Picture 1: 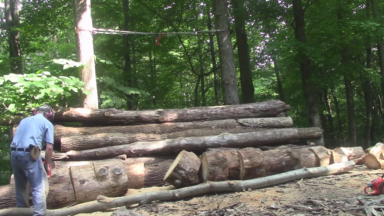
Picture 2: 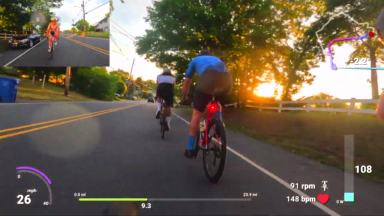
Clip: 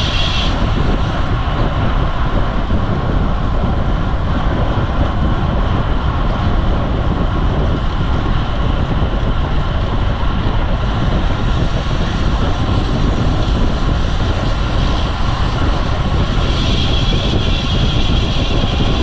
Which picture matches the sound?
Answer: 2